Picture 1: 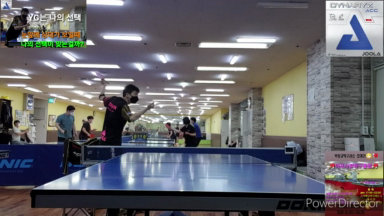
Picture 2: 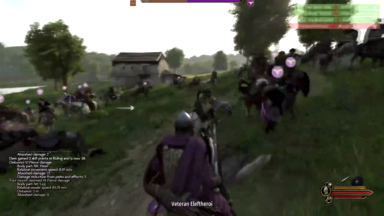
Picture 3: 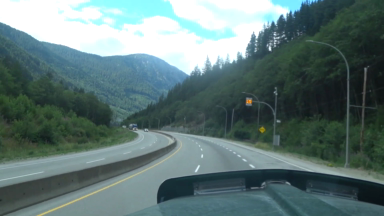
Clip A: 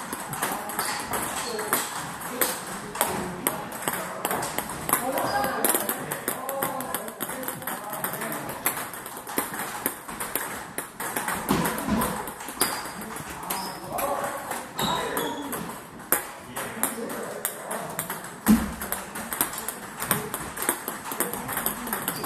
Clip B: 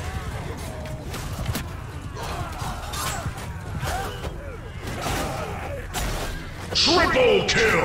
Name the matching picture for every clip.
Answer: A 1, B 2